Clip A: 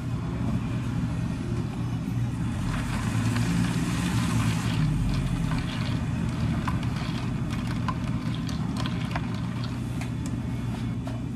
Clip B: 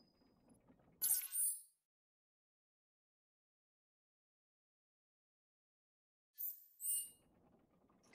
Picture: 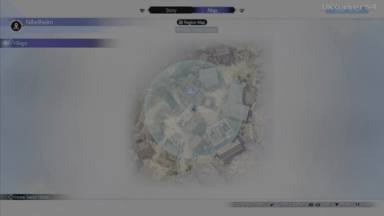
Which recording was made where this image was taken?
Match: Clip B